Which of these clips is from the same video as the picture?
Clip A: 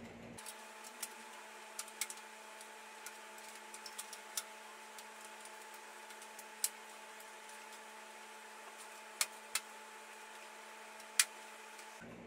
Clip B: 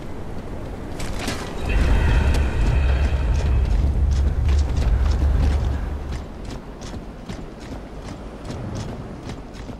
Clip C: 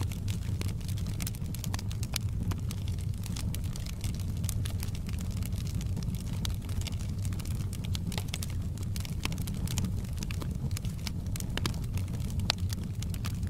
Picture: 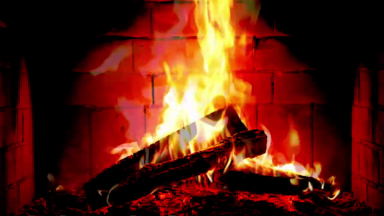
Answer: C